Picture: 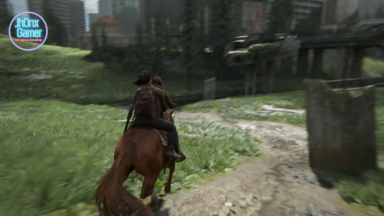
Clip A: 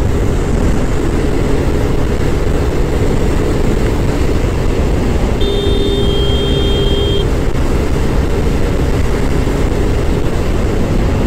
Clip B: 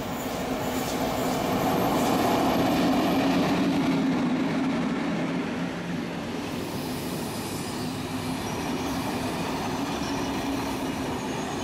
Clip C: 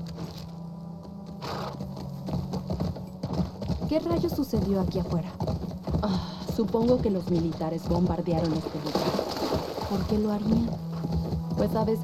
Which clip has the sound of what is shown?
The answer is C